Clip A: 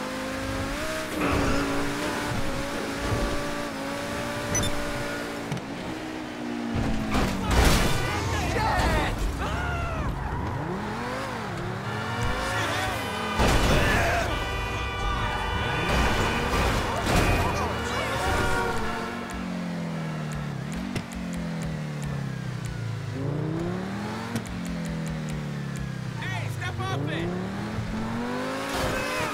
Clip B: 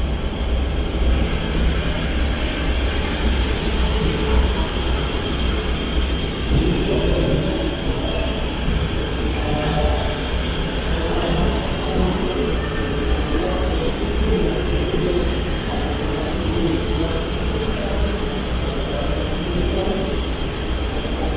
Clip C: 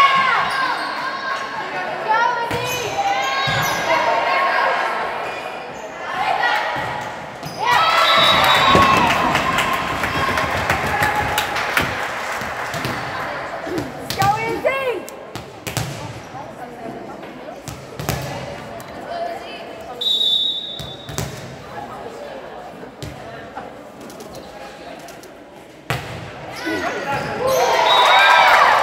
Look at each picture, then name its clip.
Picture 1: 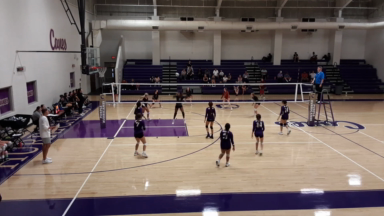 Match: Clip C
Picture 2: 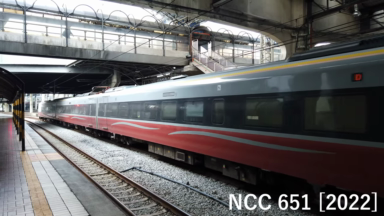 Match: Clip B